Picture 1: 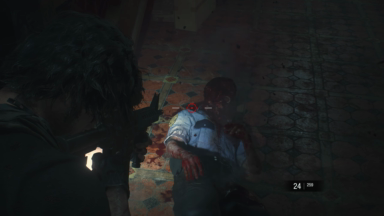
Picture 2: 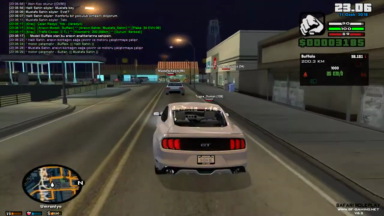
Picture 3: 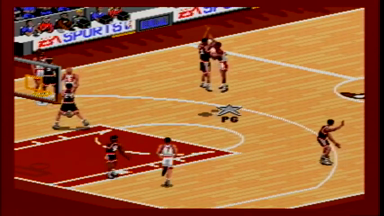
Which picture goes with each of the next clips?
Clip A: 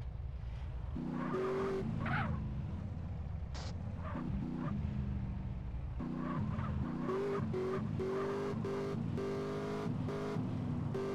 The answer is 2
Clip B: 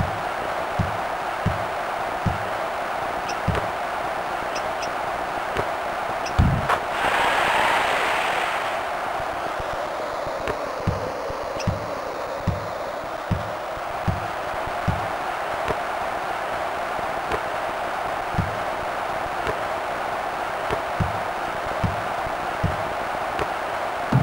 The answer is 3